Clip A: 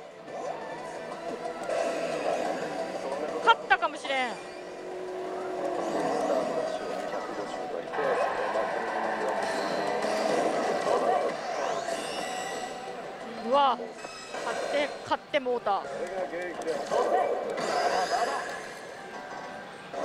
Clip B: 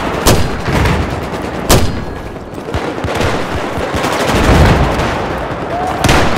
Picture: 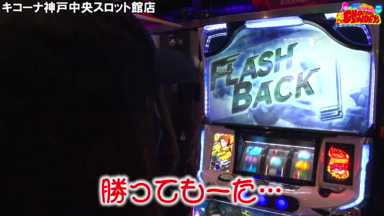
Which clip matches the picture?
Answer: A